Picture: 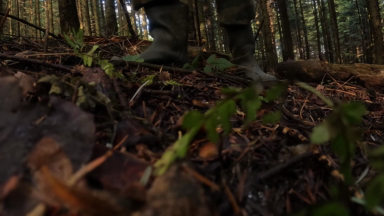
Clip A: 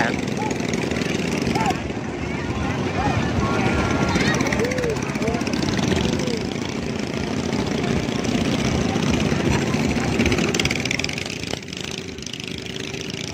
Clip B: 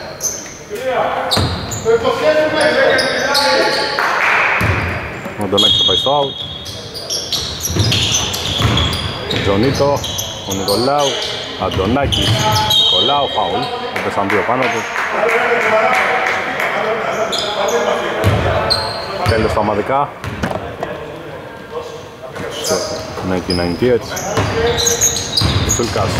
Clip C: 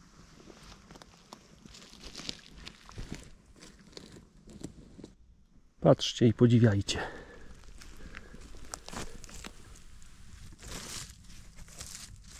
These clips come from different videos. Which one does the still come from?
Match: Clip C